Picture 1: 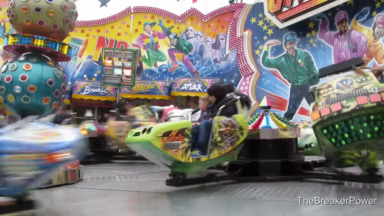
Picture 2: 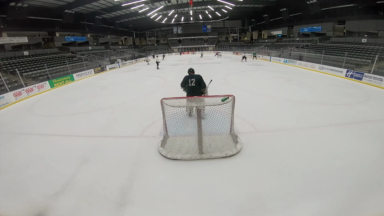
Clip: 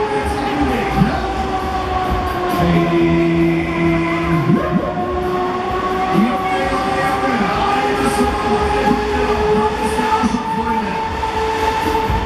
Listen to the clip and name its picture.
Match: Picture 1